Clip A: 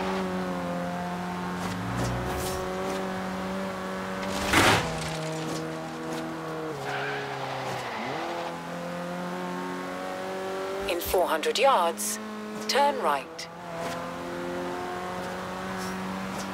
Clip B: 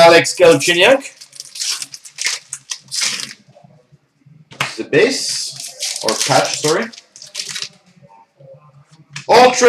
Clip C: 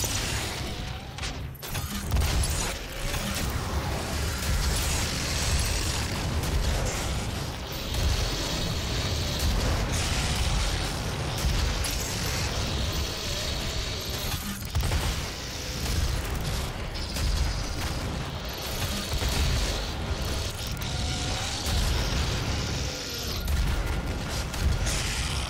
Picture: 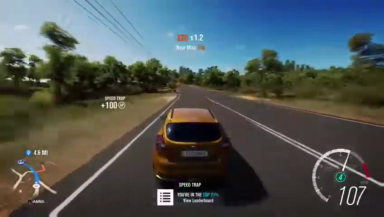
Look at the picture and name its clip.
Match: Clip A